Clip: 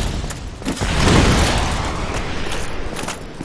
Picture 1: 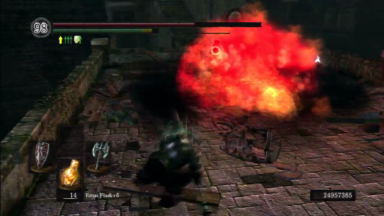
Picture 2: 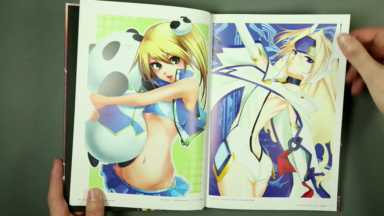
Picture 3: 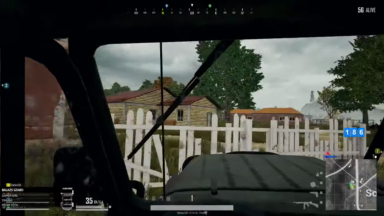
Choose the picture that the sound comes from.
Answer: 1